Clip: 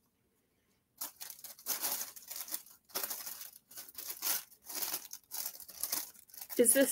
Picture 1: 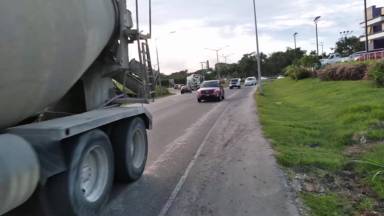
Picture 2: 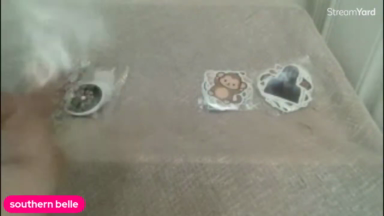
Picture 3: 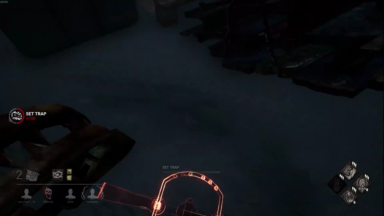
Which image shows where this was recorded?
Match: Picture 2